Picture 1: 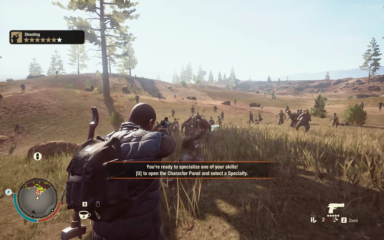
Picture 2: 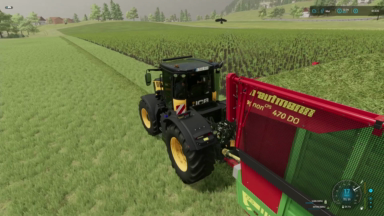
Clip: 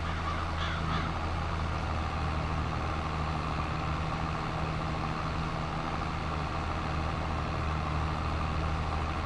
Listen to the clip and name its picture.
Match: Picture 2